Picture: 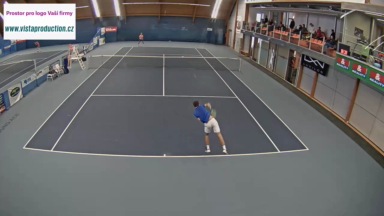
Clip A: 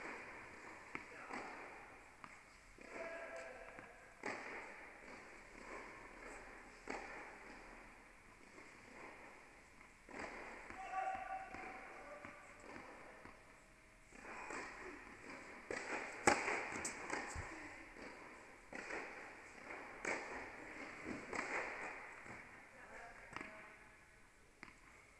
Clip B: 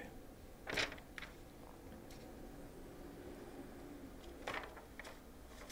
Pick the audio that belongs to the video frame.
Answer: A